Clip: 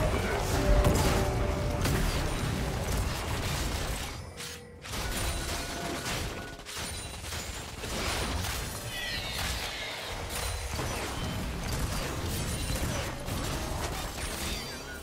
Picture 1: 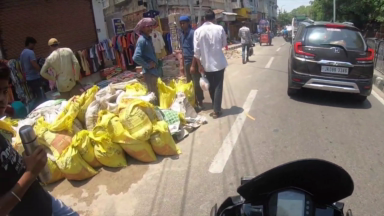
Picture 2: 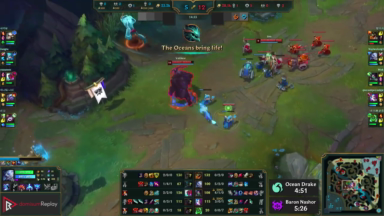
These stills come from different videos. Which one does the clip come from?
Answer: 2